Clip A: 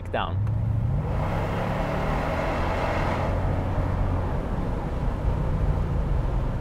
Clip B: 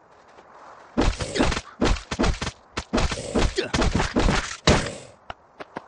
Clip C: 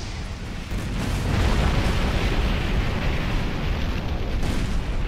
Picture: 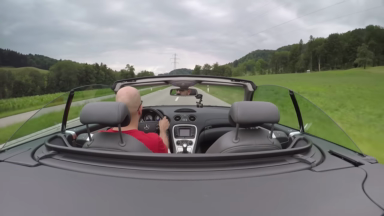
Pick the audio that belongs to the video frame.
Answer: A